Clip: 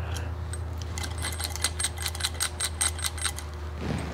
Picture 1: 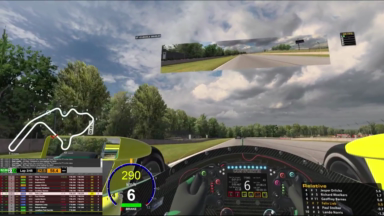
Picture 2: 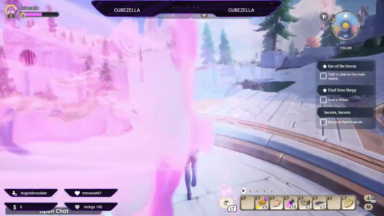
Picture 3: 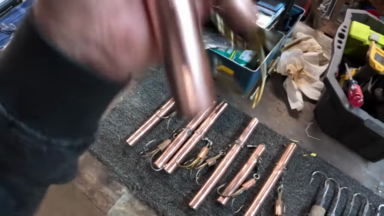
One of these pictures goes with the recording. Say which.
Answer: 3